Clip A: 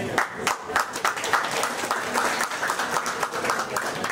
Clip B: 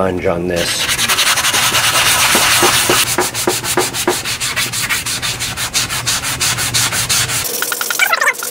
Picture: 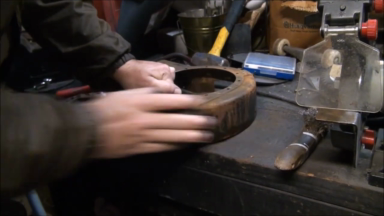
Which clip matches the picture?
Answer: B